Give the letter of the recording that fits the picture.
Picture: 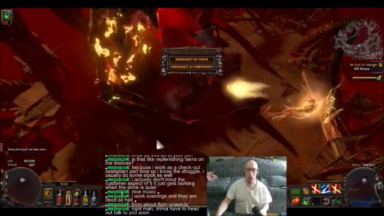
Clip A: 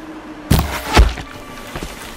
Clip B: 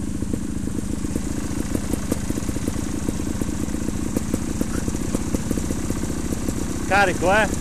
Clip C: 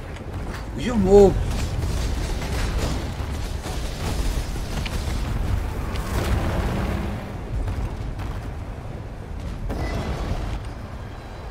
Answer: C